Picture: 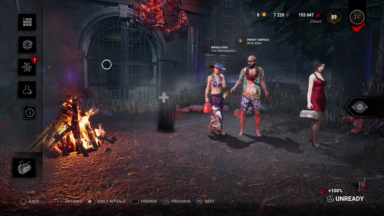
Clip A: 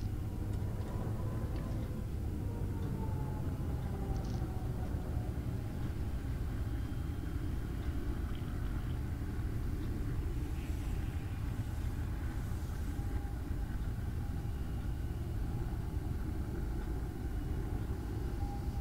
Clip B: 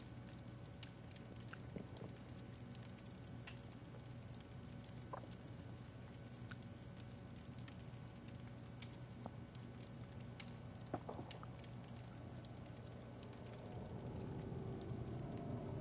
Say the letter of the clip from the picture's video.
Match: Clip B